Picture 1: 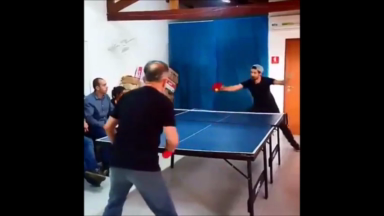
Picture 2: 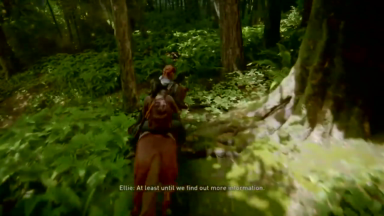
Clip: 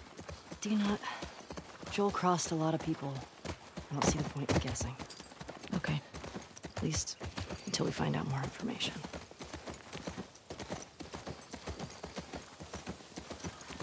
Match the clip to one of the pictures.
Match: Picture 2